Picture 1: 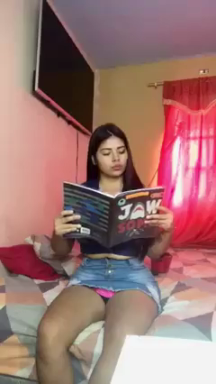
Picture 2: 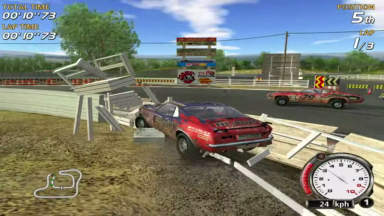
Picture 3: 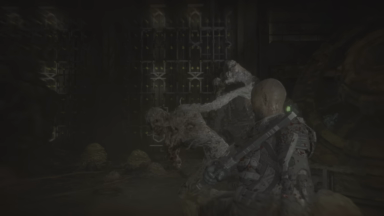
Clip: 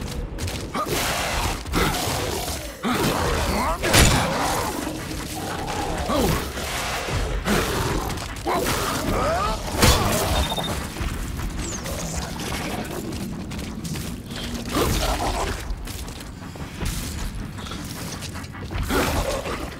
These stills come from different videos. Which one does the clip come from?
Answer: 3